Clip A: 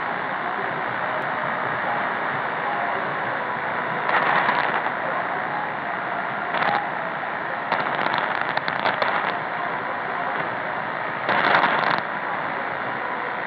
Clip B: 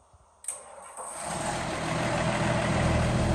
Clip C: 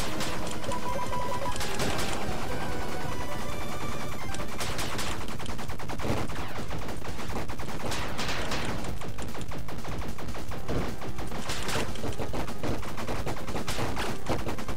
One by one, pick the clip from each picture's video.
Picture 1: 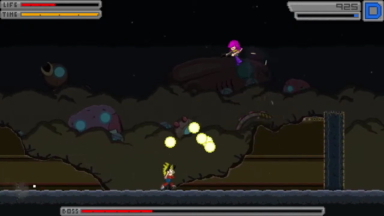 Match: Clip C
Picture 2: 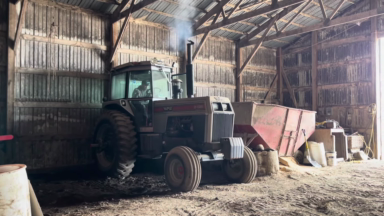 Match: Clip B